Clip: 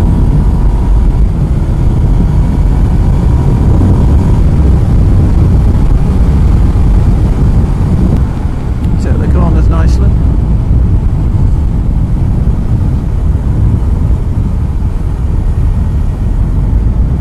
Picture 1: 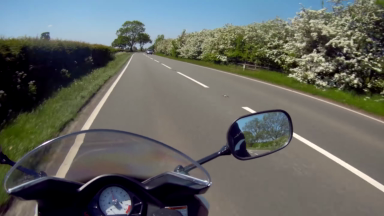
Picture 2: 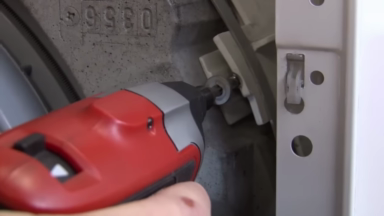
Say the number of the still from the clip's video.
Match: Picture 1